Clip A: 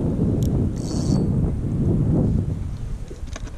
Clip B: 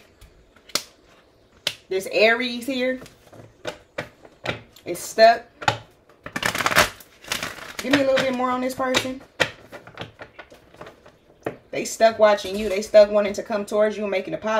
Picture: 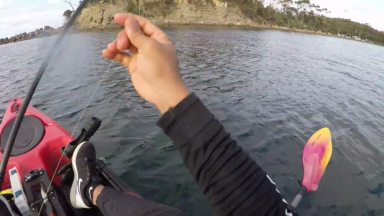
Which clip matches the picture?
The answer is A